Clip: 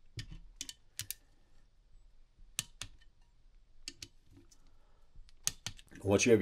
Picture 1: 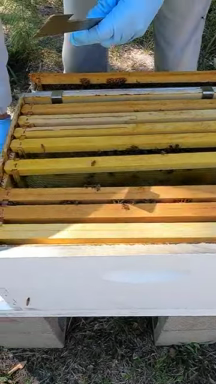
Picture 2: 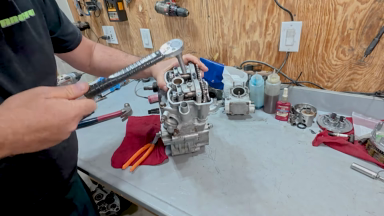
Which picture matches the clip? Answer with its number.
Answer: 2